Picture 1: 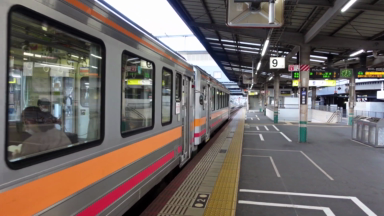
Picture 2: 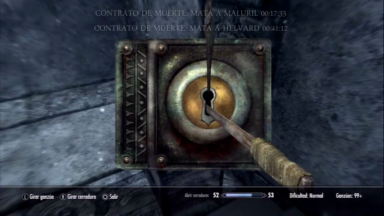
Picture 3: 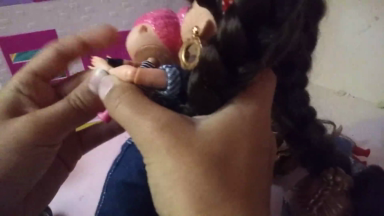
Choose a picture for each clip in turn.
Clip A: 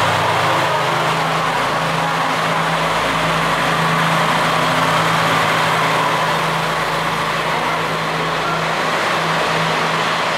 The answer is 1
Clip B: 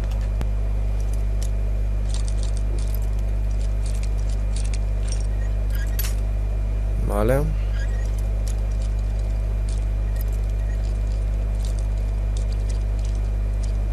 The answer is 2